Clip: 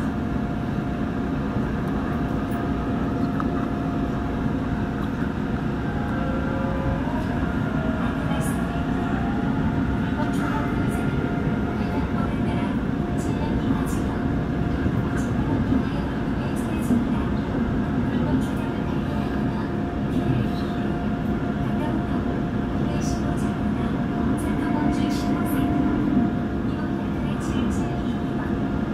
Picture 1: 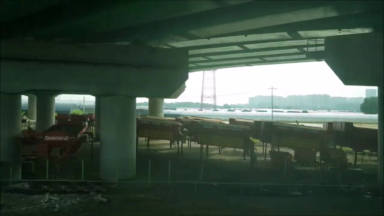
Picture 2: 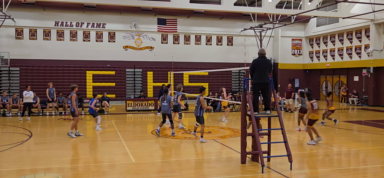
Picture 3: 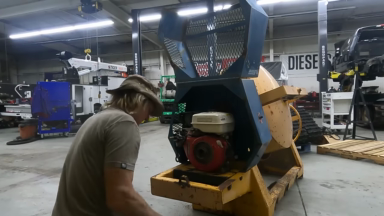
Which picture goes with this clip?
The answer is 1